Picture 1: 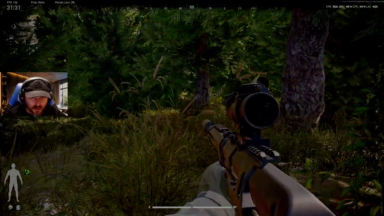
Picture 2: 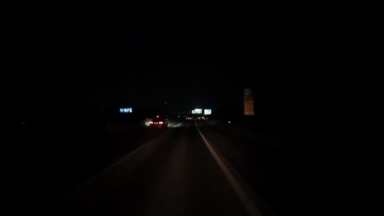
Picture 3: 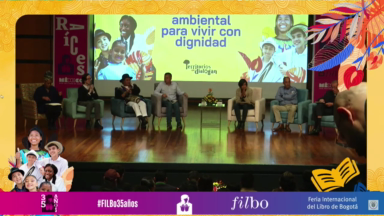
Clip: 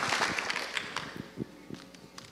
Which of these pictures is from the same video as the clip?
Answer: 3